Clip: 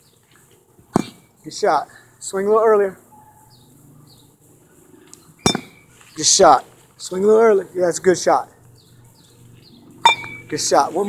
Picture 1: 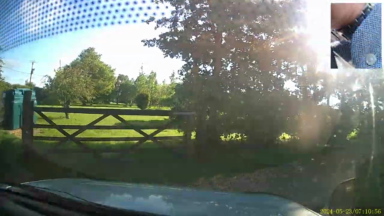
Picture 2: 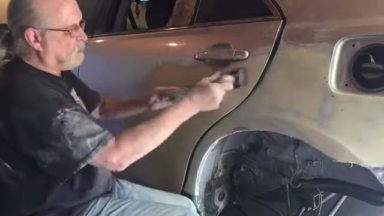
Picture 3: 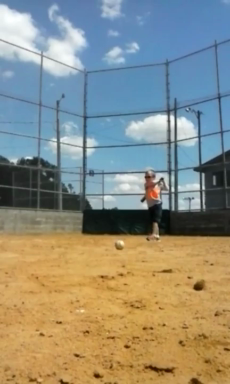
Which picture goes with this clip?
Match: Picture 3